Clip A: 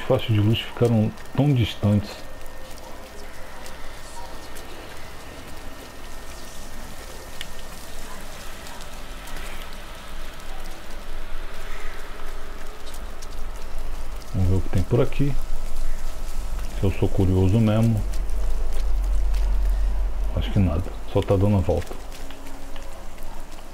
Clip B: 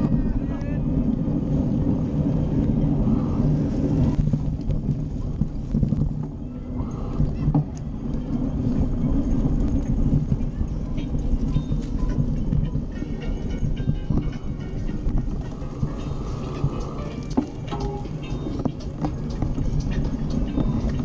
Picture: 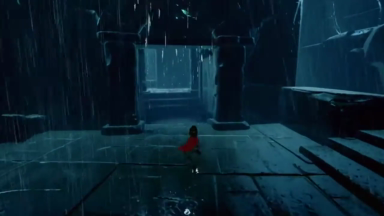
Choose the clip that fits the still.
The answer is A